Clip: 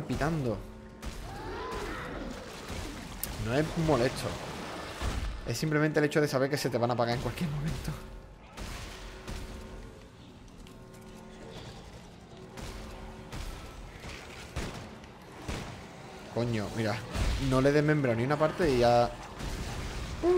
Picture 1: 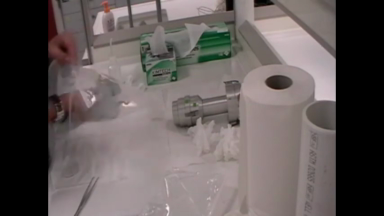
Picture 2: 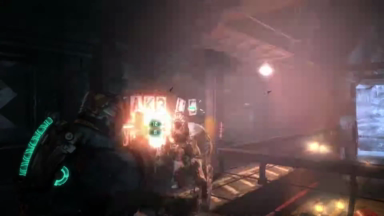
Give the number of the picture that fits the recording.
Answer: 2